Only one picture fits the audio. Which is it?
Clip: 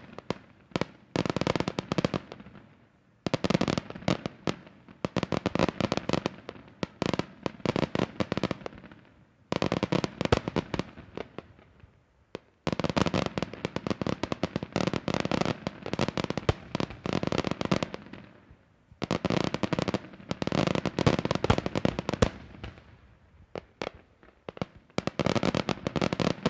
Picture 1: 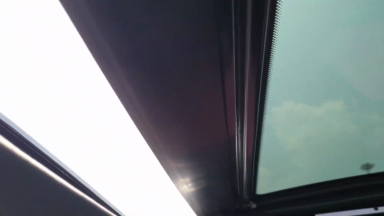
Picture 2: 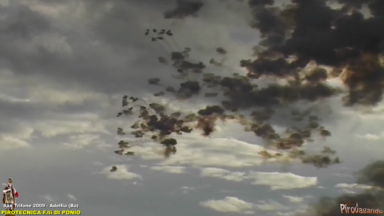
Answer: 2